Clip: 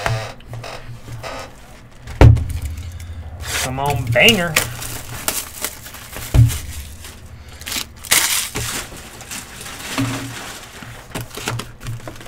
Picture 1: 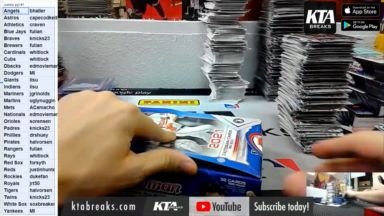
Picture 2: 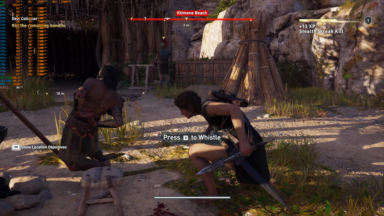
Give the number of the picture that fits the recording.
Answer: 1